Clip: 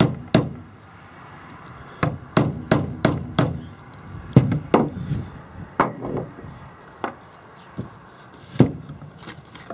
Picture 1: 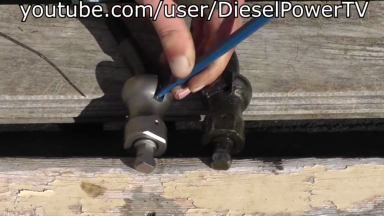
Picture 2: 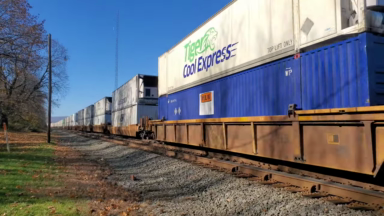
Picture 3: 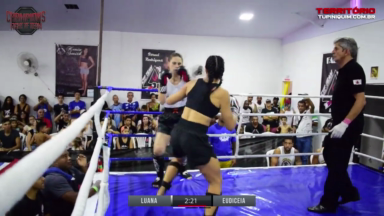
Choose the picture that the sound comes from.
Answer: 1